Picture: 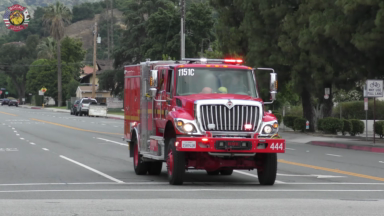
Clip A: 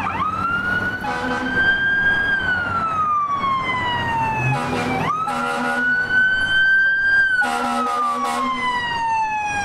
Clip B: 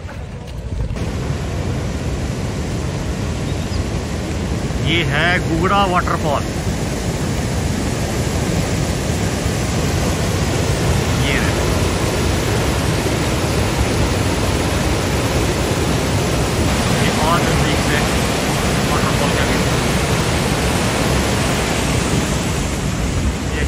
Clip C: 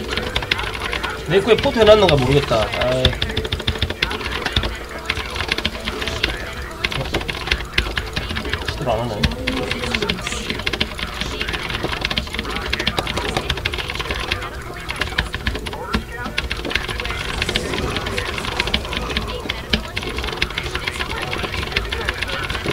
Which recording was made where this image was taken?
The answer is A